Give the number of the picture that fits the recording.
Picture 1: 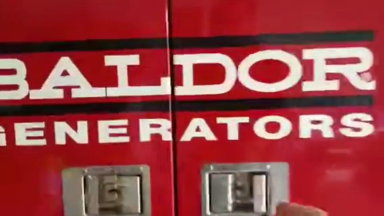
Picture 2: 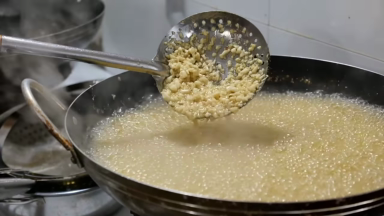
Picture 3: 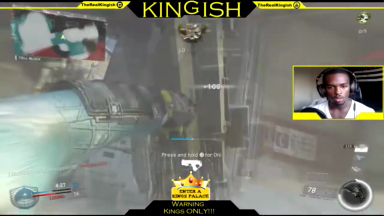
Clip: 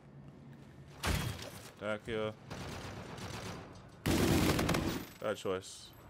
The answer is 3